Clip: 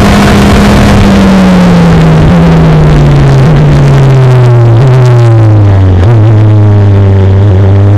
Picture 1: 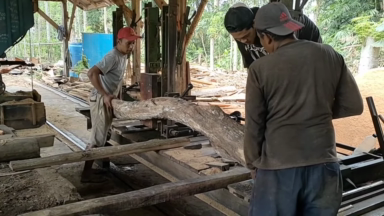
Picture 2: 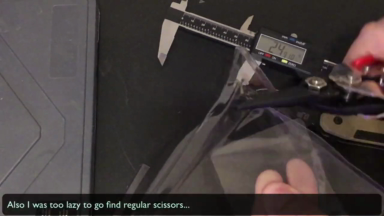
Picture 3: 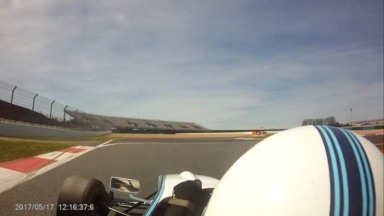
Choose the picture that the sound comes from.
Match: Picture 3